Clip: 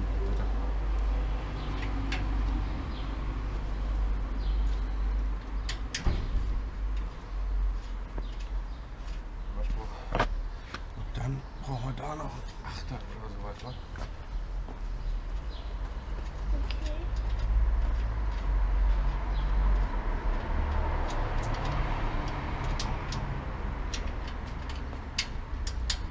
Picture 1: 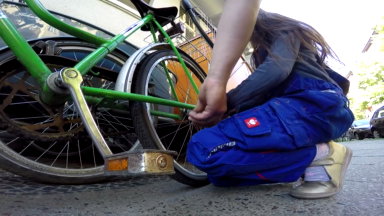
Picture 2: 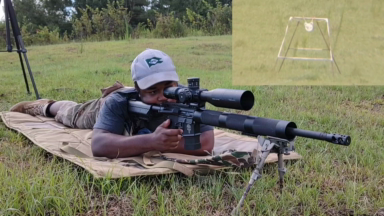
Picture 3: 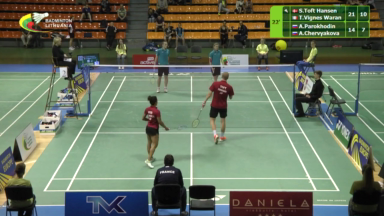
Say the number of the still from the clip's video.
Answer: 1